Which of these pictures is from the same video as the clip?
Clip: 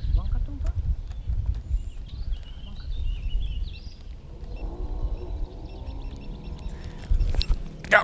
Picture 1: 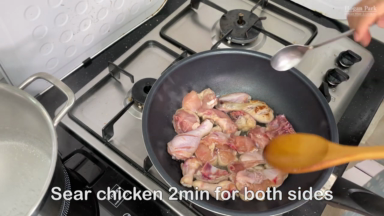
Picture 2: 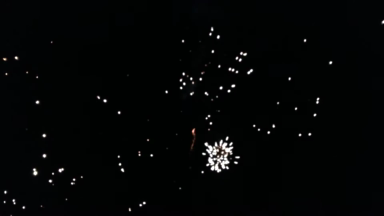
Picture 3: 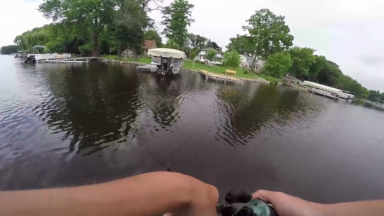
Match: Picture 3